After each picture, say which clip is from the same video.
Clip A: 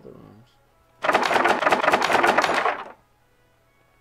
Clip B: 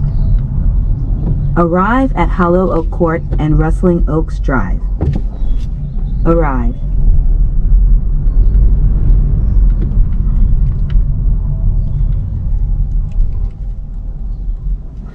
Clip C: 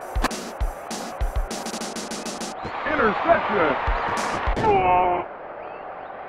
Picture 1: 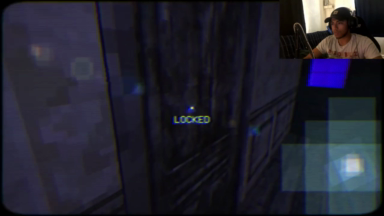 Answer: A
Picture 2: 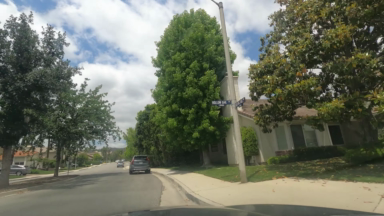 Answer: B